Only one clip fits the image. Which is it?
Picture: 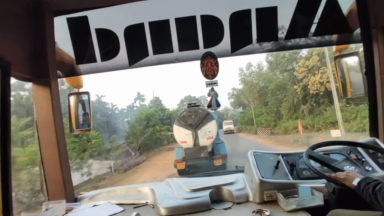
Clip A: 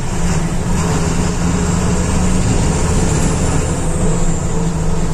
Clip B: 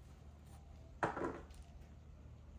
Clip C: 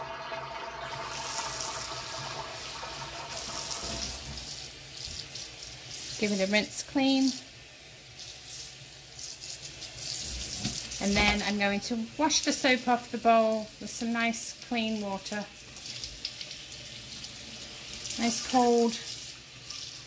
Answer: A